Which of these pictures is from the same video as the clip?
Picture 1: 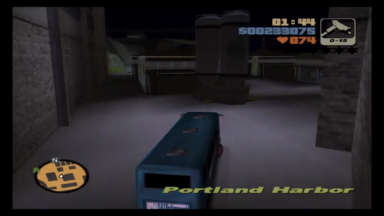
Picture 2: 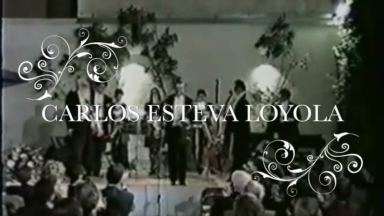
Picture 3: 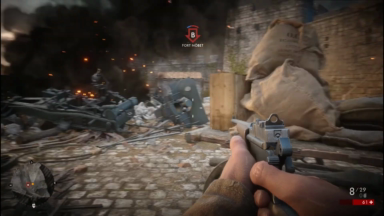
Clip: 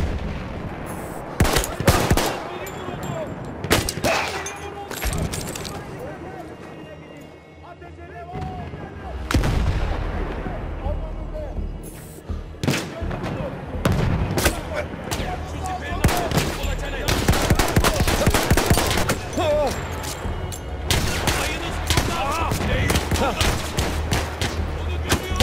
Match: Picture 3